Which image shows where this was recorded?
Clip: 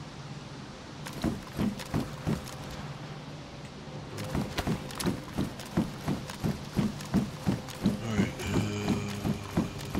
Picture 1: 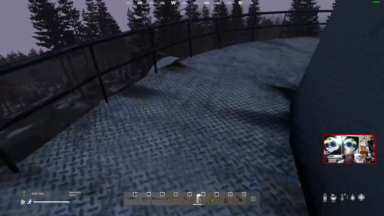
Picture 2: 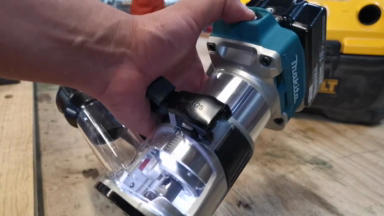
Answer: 1